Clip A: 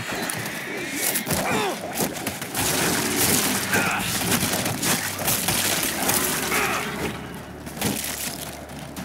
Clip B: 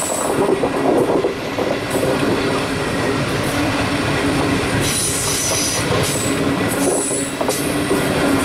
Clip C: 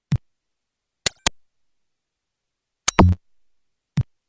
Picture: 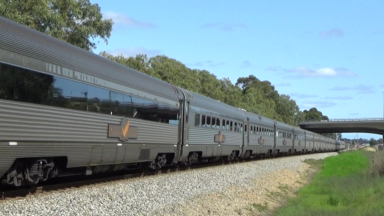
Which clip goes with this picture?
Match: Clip B